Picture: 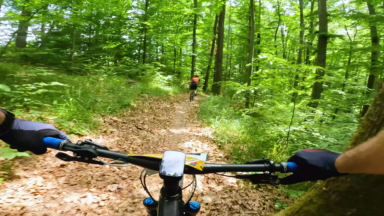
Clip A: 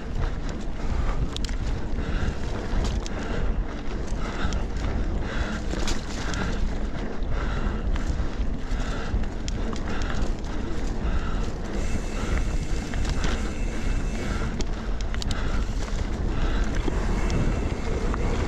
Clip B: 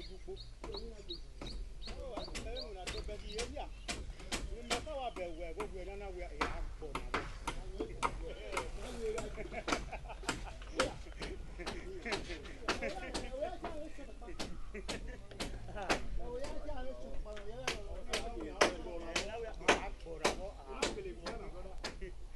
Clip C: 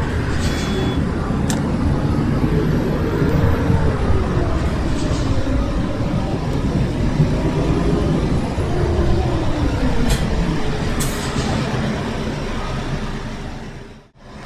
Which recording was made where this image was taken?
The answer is A